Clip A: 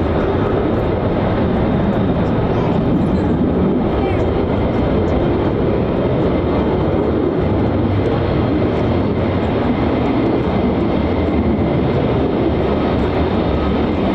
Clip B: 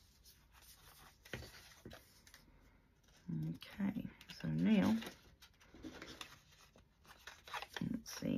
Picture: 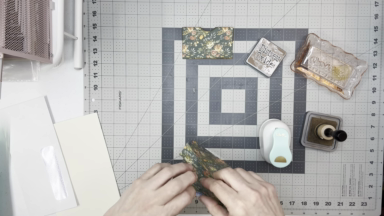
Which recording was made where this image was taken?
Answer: B